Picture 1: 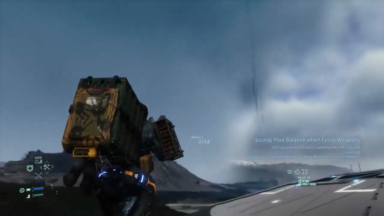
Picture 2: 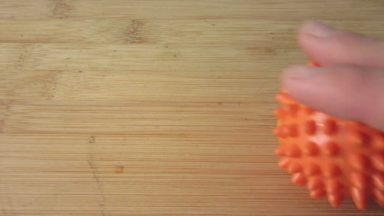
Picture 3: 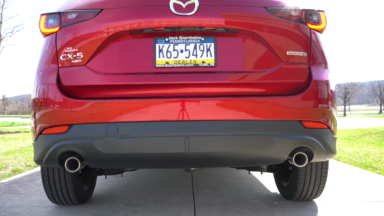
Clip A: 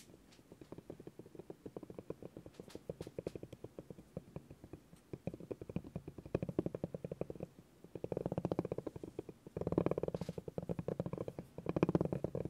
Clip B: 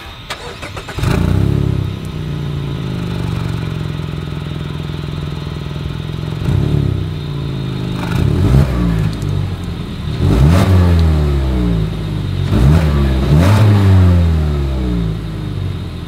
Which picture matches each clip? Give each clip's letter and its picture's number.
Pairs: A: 2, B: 3